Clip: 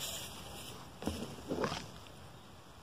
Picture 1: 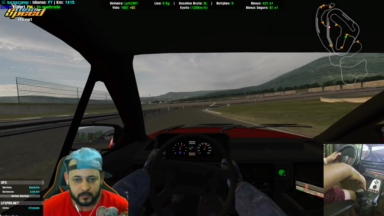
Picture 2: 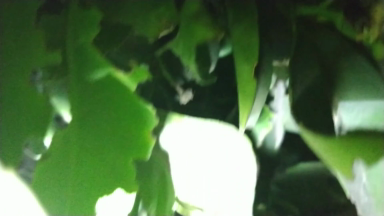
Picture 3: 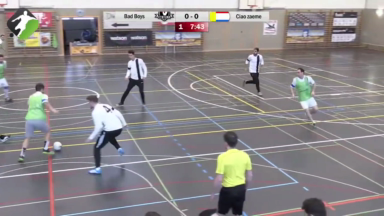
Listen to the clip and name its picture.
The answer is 2